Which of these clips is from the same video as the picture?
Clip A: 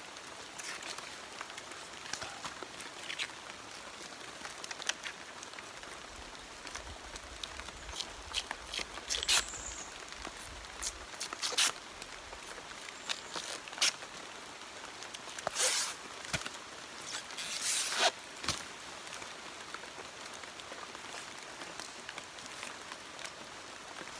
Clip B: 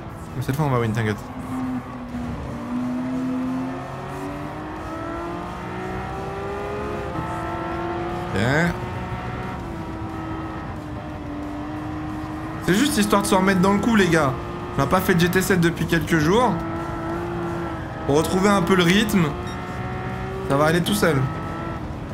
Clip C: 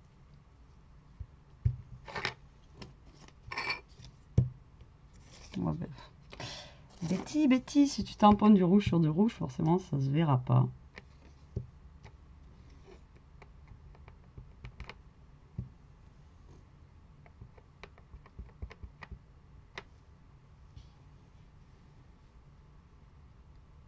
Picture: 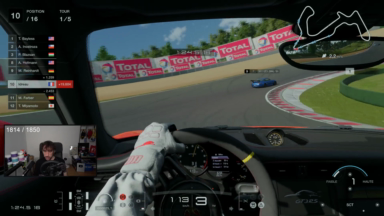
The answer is B